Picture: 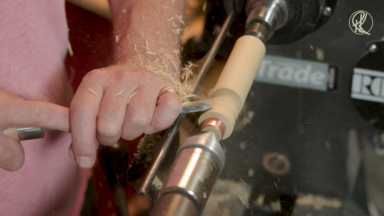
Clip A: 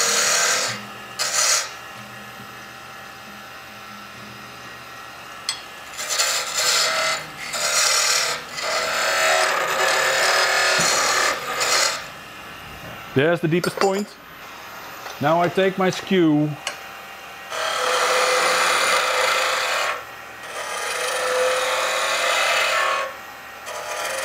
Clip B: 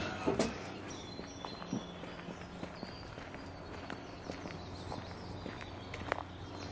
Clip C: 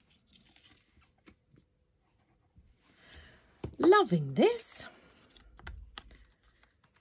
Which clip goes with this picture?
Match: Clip A